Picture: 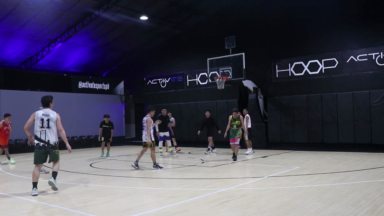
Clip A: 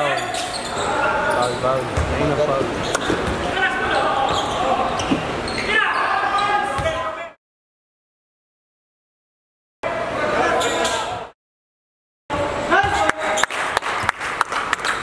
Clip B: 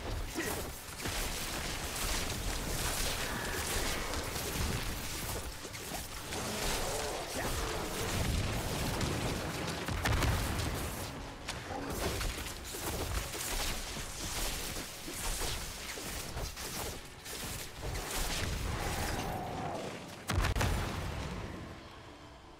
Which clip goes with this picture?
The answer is A